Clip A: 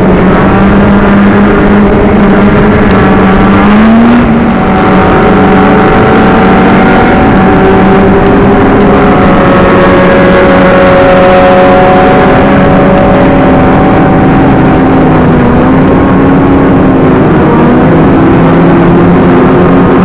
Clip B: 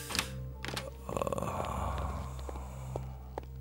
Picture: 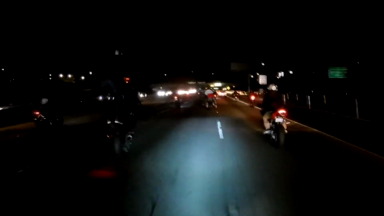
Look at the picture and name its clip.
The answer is A